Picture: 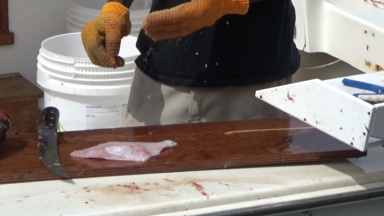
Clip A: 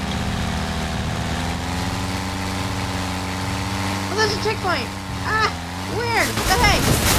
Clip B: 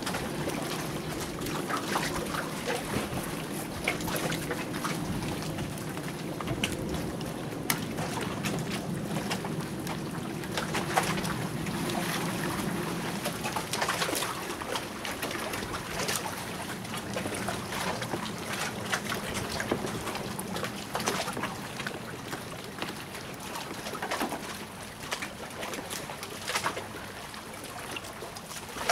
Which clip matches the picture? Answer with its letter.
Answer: B